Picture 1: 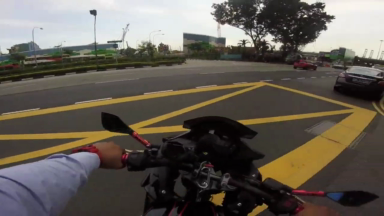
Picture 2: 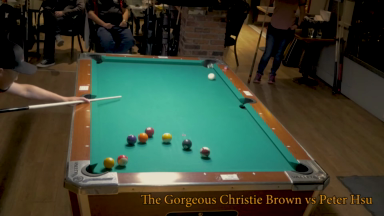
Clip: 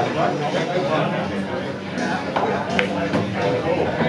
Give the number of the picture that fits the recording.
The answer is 2